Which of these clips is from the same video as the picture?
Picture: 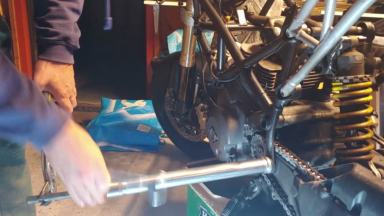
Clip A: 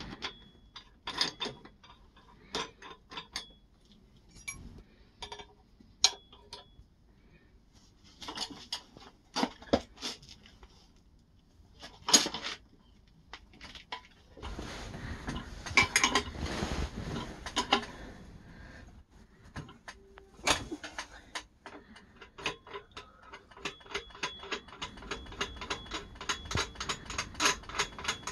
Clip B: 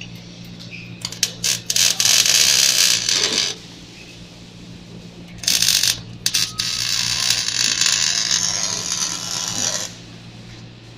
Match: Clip A